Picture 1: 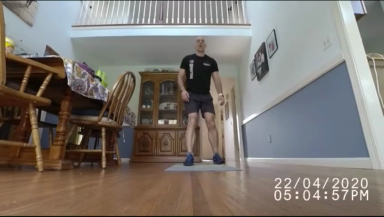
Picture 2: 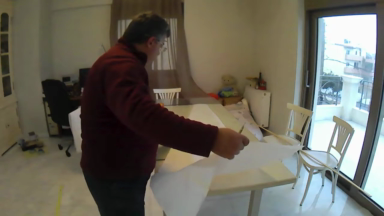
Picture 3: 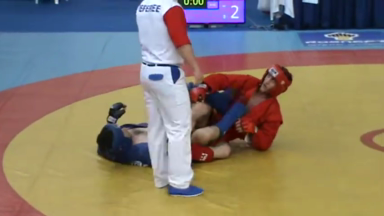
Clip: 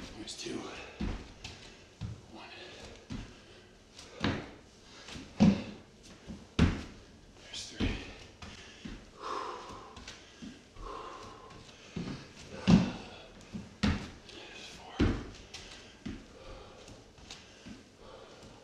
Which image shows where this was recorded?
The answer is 1